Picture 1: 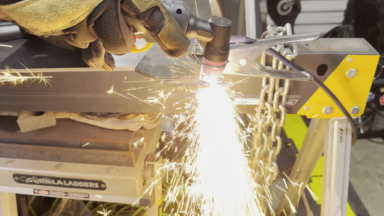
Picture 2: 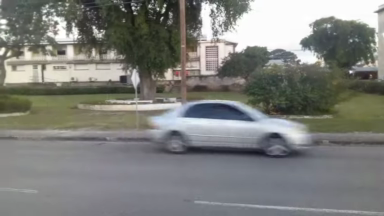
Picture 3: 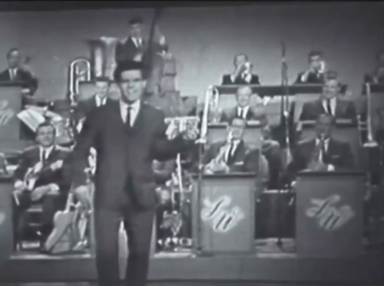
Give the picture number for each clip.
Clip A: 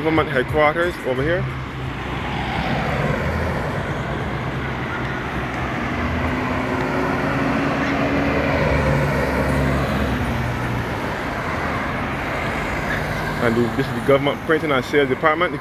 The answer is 2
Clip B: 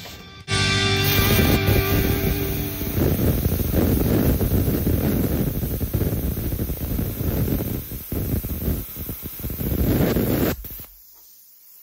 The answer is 1